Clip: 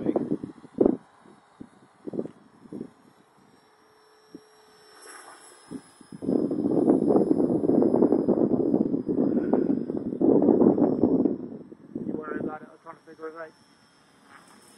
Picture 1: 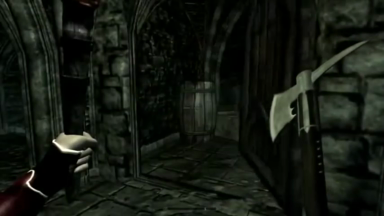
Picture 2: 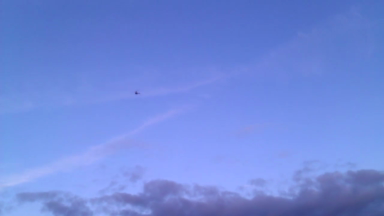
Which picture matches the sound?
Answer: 2